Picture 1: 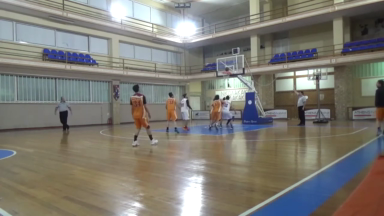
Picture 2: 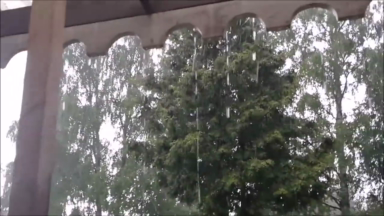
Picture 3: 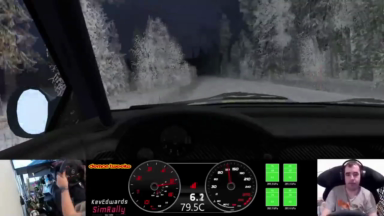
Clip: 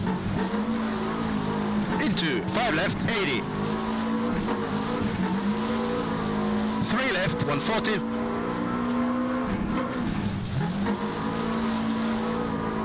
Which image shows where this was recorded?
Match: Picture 3